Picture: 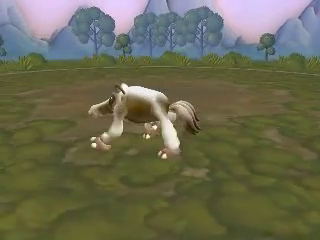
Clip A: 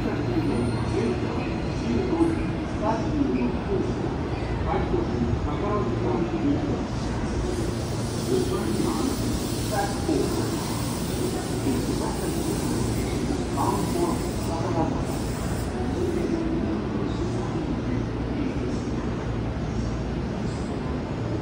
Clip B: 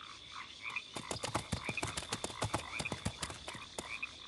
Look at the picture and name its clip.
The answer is B